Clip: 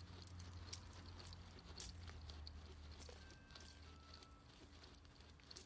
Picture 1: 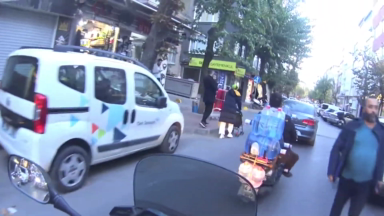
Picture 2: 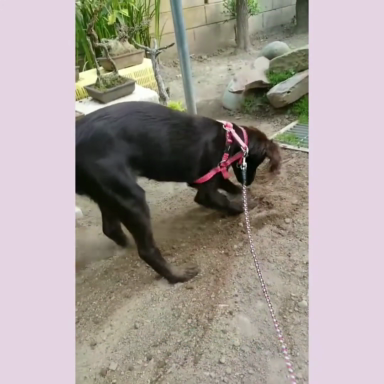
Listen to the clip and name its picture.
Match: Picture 2